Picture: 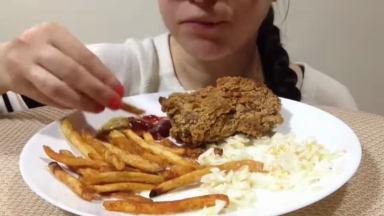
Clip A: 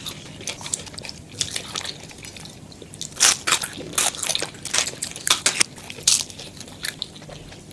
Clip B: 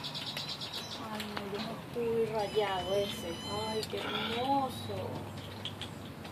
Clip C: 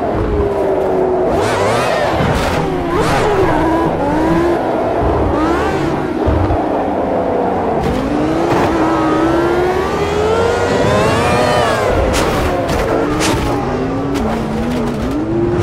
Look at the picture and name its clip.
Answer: A